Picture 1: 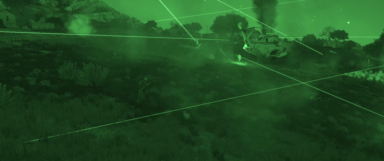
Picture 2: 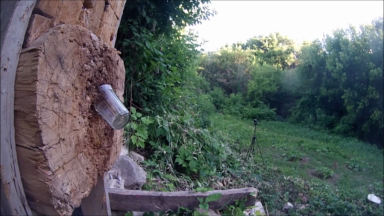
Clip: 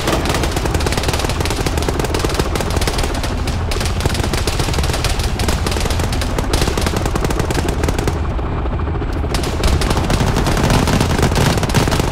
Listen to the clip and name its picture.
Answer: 1